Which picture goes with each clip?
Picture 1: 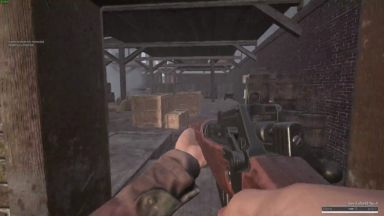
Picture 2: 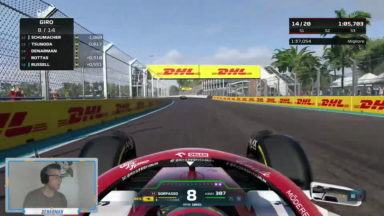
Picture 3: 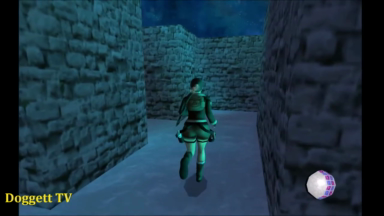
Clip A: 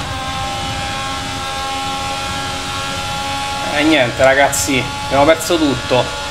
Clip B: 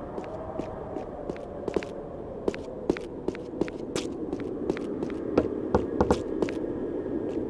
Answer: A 2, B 3